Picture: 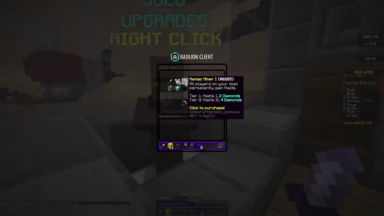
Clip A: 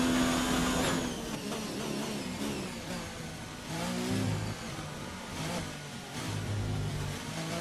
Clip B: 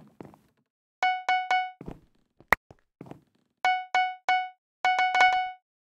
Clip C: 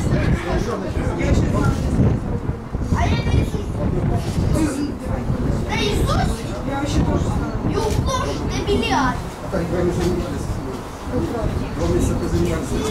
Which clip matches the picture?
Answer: B